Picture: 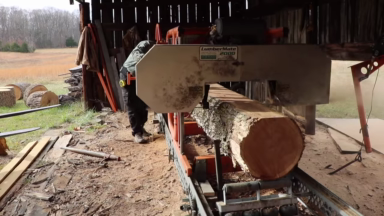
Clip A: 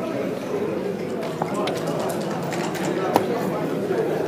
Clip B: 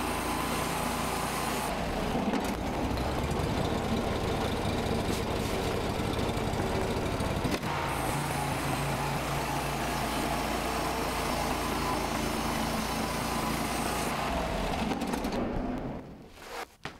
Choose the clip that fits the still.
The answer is B